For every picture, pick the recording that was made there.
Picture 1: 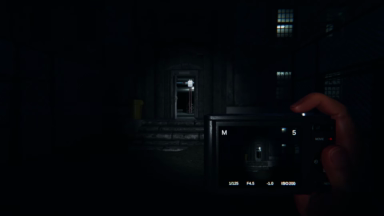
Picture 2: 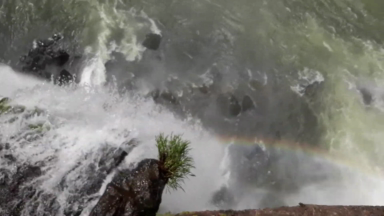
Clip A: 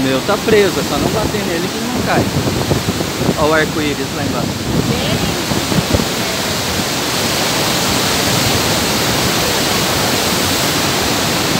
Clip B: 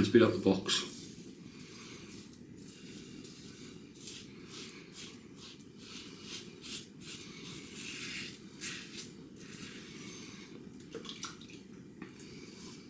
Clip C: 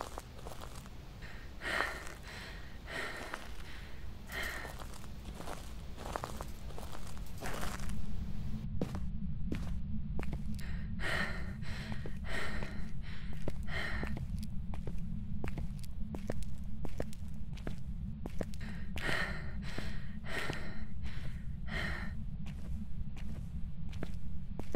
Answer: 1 C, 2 A